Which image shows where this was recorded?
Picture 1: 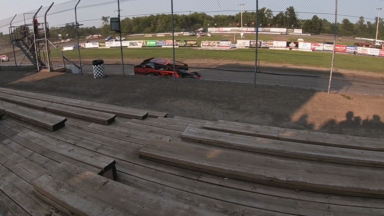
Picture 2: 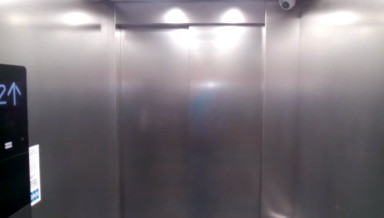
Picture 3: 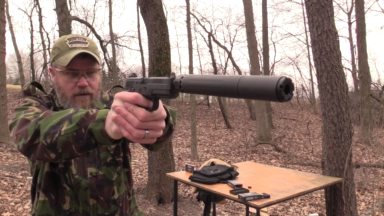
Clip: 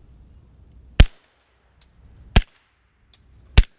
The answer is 3